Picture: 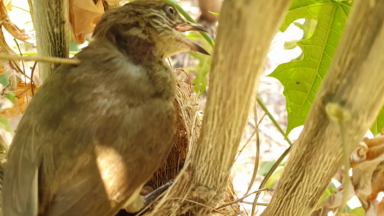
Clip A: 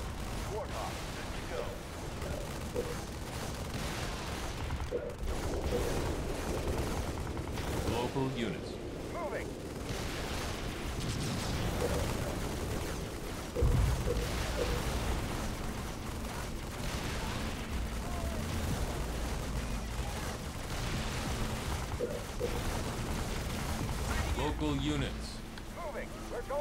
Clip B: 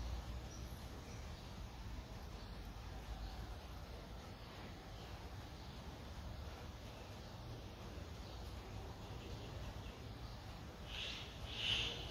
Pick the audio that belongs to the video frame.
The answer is B